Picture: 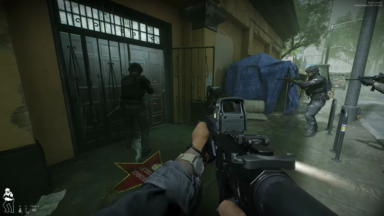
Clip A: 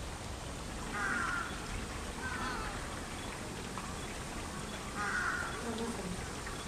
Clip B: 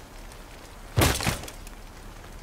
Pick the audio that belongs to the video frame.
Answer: B